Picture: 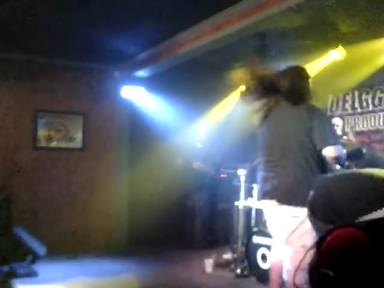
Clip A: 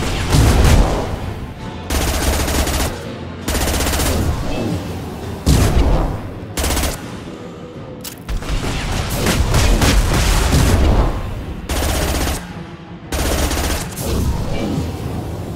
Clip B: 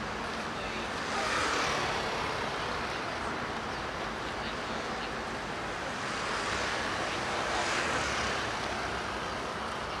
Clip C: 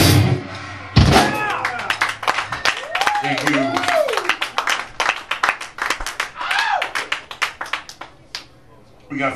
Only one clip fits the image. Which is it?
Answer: C